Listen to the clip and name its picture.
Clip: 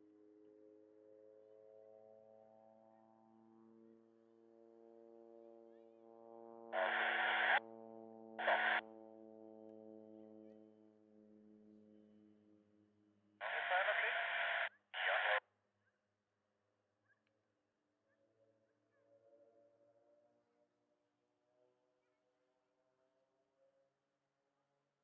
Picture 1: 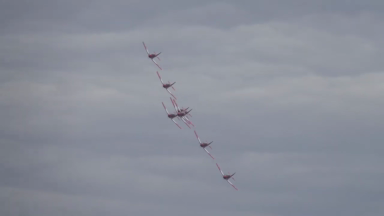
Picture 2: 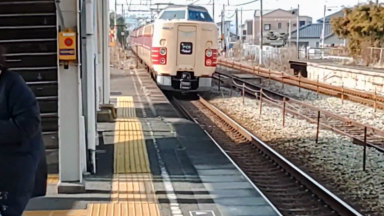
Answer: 1